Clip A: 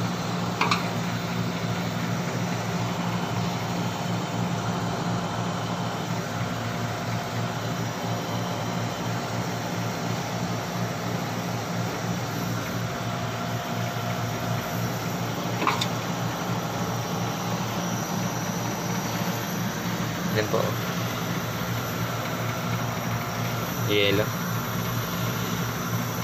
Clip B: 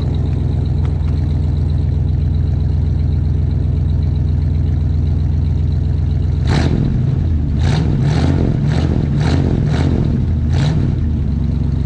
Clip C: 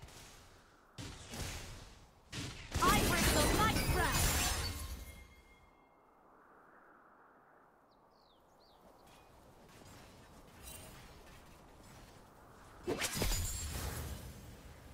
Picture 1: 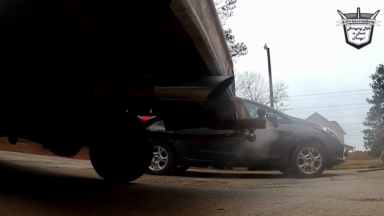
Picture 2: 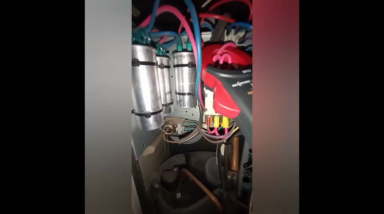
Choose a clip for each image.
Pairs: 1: B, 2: A